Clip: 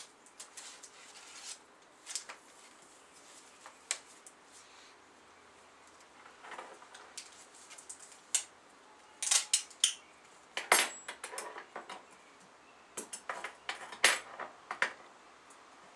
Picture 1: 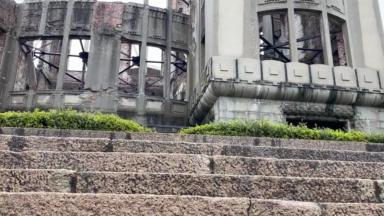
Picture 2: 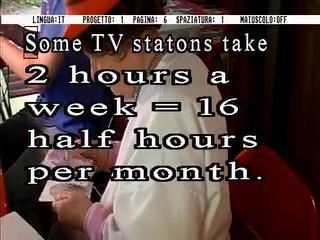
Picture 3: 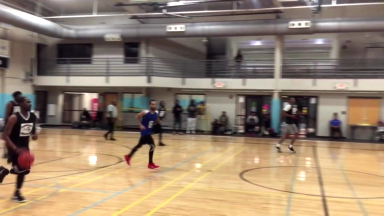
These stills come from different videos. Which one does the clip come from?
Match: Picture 2